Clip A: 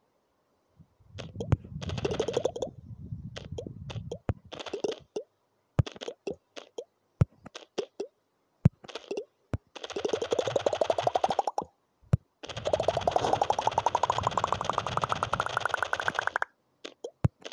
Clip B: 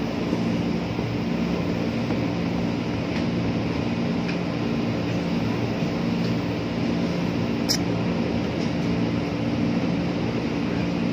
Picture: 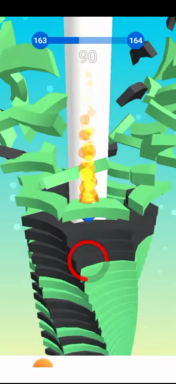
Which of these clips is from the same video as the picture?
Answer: A